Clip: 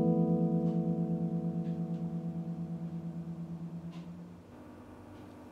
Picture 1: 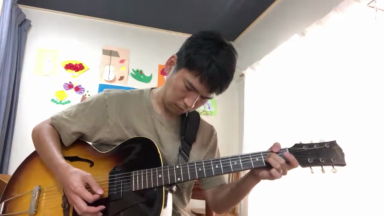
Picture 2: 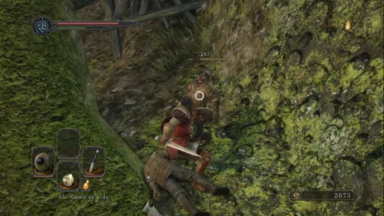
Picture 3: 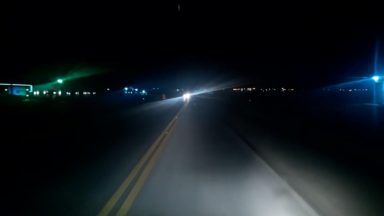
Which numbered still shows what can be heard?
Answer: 1